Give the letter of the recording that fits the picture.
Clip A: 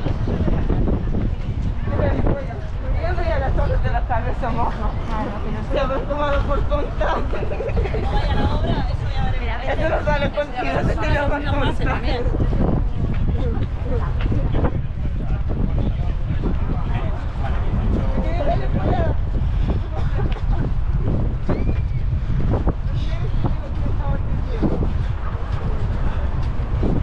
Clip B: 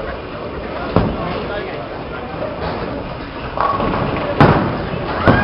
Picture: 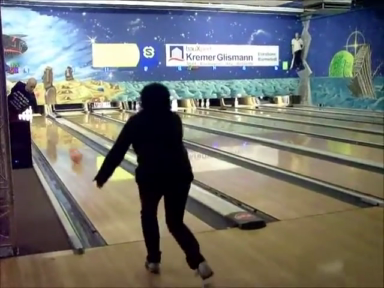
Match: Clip B